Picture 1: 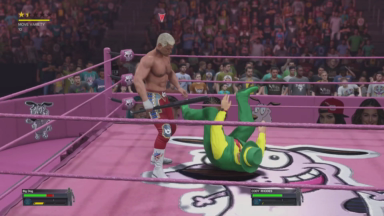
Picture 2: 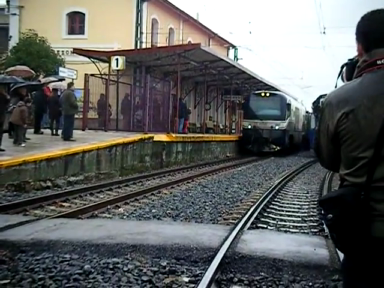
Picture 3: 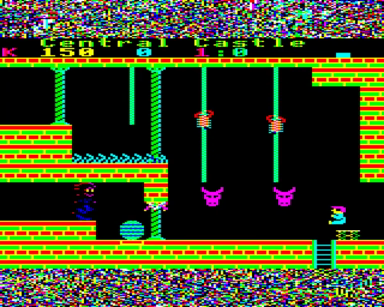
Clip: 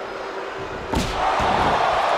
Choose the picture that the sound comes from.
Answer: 1